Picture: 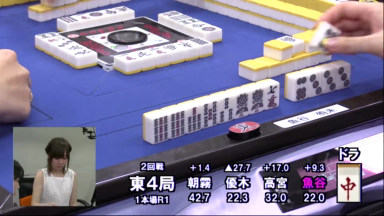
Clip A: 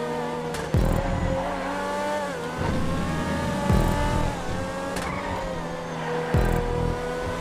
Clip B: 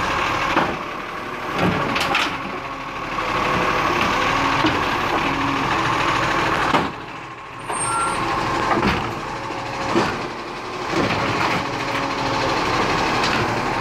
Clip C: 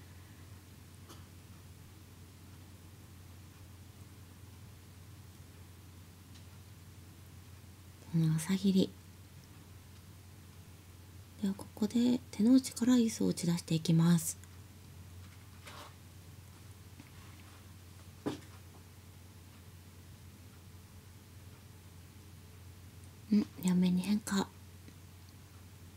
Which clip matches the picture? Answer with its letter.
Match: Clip C